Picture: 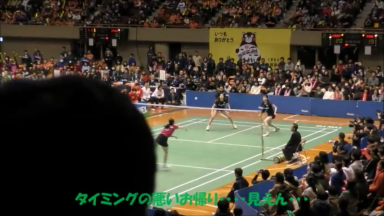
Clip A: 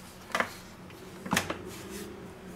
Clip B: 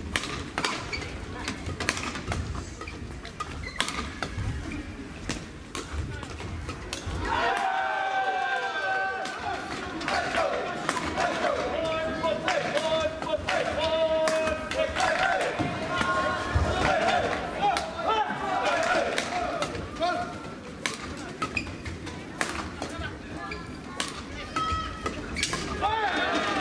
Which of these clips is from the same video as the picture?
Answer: B